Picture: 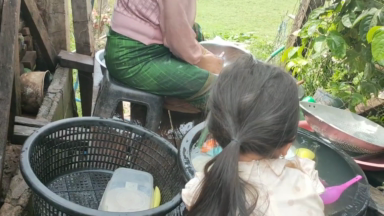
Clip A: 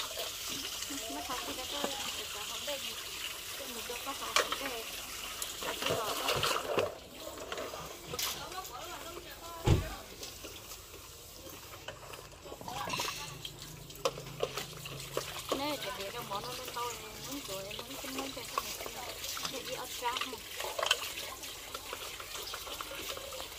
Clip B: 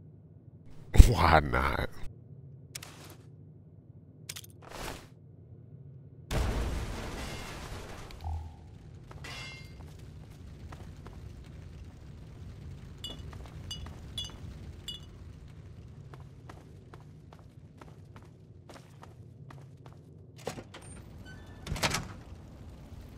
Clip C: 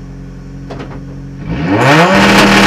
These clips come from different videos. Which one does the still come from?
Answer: A